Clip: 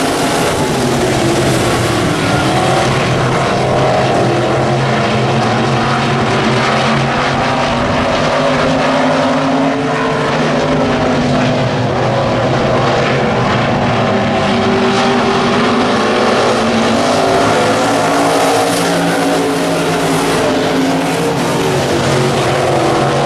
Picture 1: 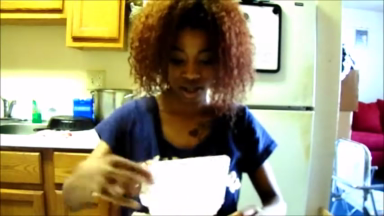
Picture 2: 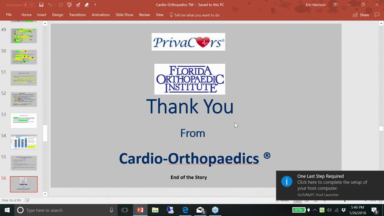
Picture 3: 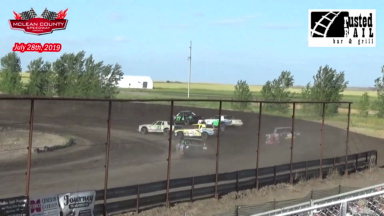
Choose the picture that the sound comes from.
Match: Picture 3